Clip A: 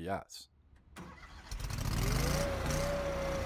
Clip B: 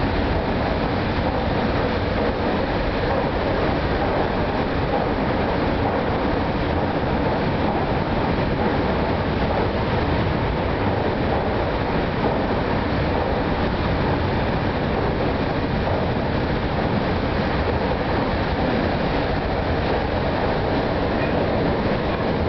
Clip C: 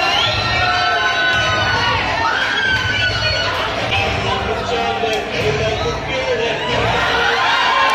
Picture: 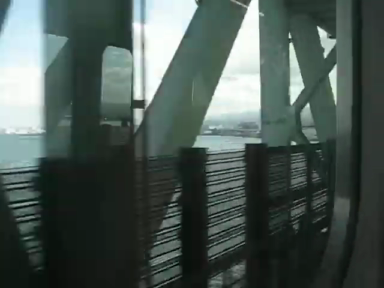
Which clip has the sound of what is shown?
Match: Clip B